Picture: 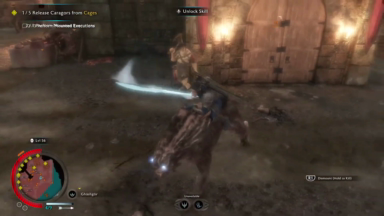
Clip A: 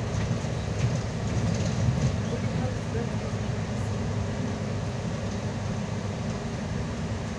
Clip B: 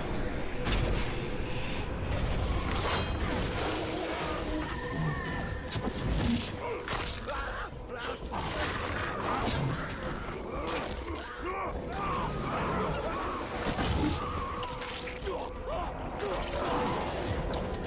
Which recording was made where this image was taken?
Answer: B